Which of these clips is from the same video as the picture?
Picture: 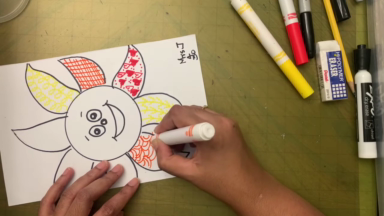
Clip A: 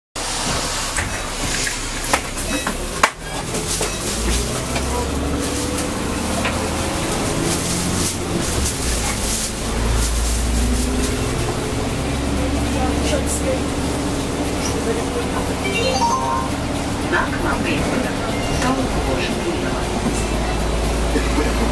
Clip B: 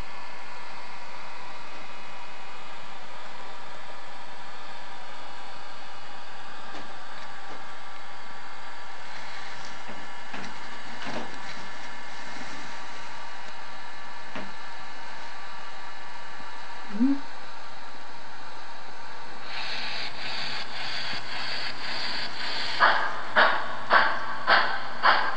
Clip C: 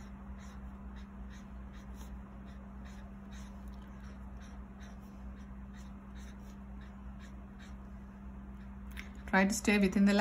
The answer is C